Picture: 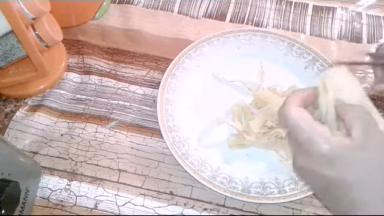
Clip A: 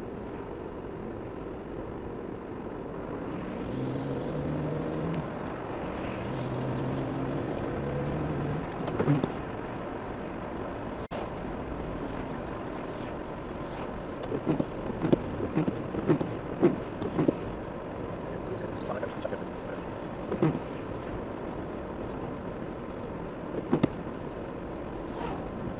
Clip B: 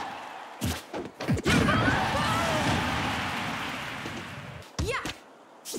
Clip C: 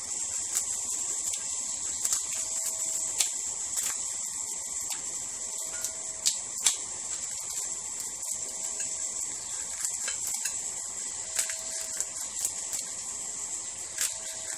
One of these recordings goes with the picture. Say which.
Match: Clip C